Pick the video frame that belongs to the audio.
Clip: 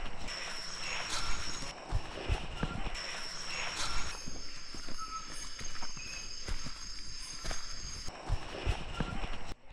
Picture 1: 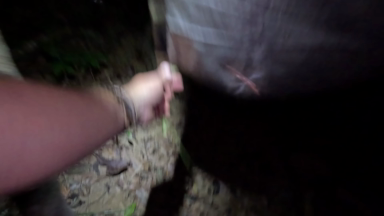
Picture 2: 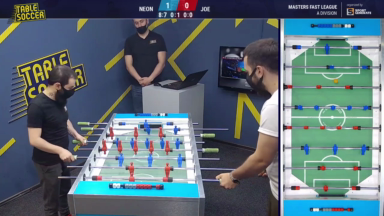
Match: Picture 1